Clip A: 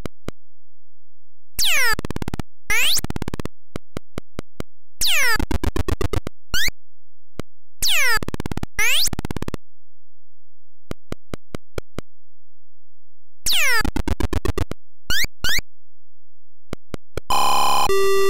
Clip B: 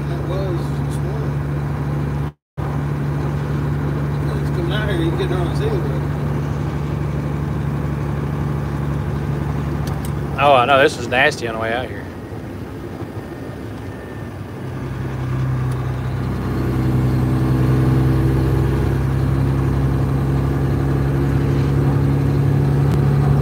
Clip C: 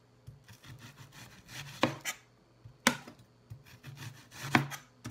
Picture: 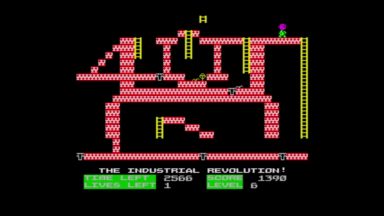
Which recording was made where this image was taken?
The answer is A